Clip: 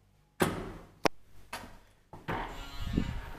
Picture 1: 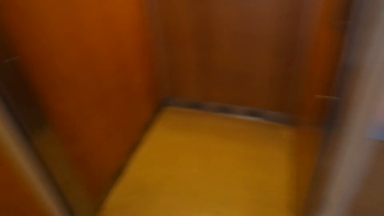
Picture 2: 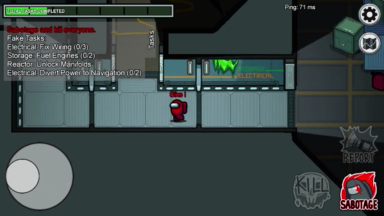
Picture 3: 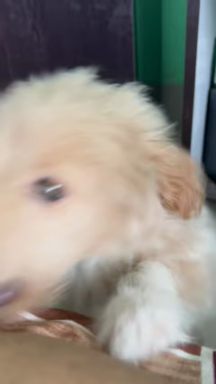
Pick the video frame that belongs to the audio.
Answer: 1